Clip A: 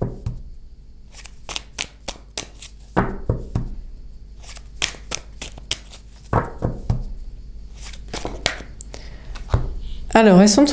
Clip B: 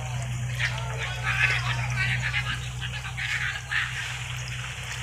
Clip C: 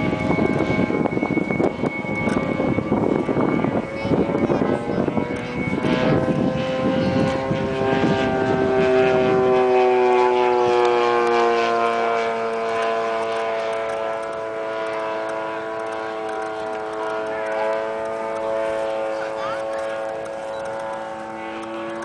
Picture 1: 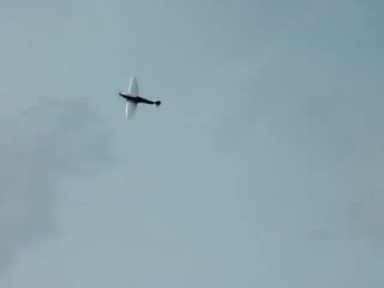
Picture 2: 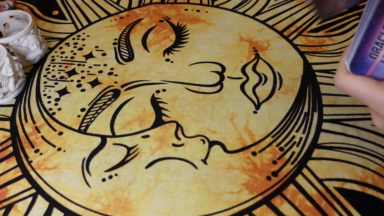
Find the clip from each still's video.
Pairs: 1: C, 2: A